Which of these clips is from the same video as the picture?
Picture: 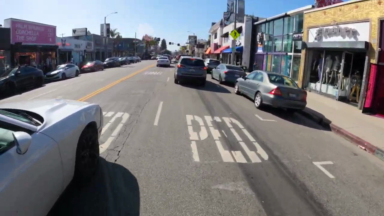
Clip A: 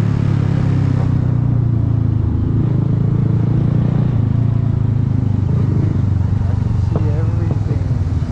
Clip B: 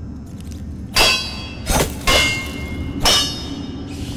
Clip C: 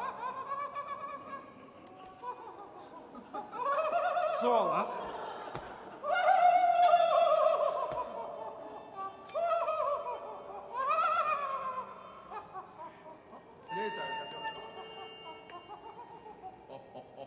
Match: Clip A